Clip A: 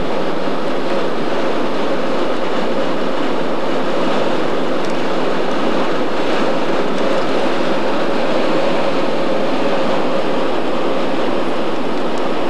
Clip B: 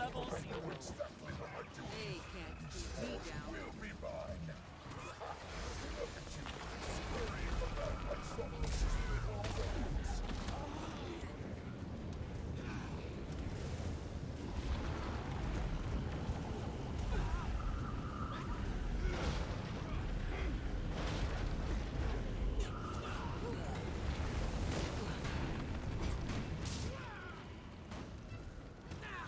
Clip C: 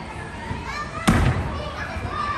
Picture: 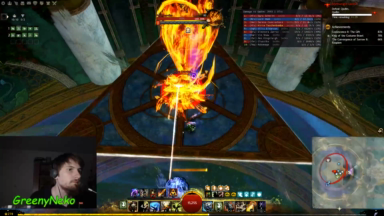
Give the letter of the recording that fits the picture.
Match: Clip B